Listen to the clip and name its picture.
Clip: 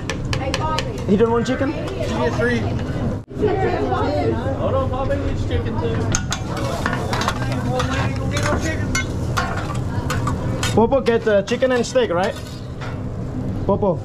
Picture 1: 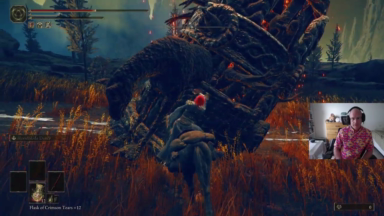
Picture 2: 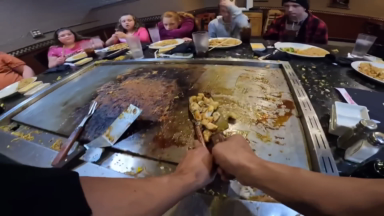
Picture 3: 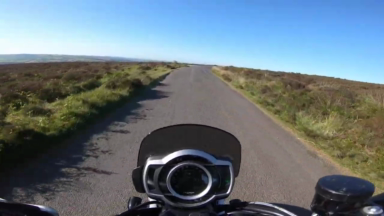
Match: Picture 2